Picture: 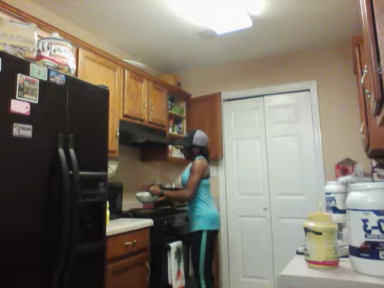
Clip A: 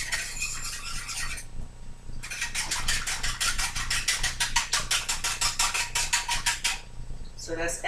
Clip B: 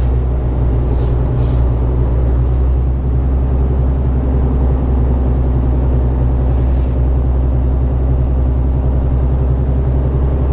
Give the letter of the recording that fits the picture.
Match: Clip A